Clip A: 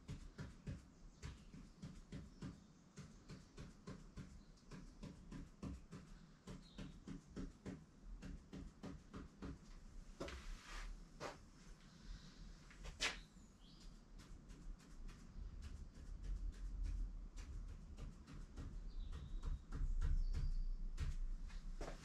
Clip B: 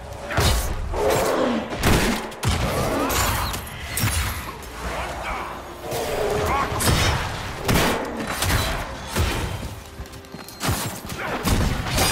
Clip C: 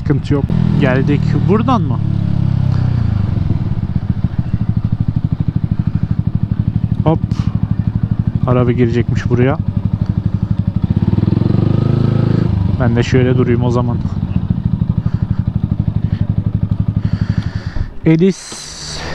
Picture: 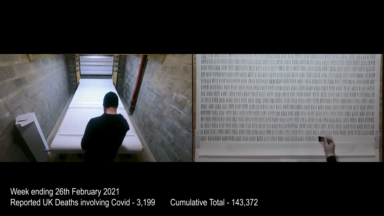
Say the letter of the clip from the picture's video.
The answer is A